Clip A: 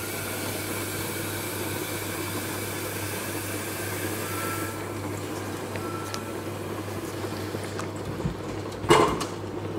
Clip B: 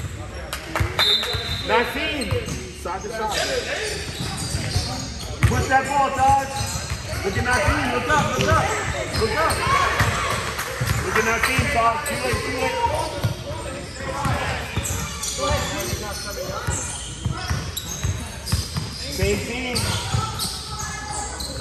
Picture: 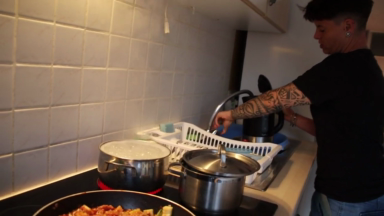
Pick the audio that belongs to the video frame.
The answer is A